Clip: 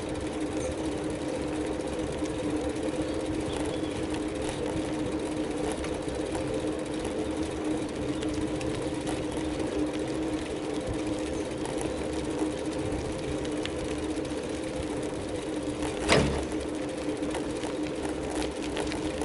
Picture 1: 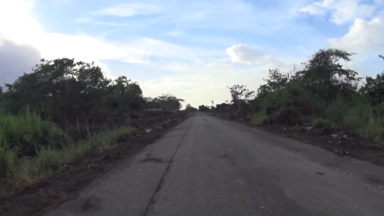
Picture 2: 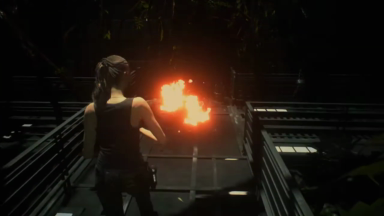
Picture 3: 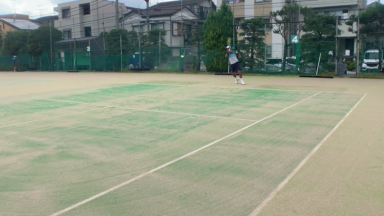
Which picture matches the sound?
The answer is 1